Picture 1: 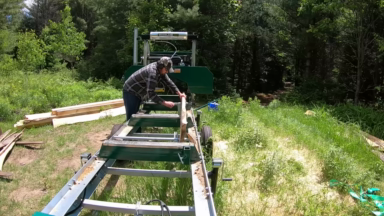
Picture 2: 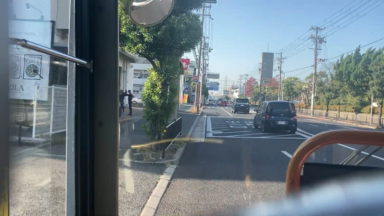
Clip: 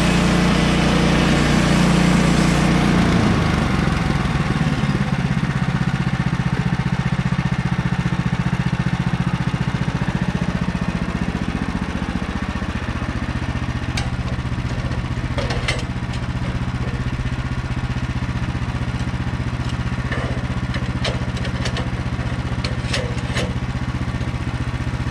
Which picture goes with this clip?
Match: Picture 1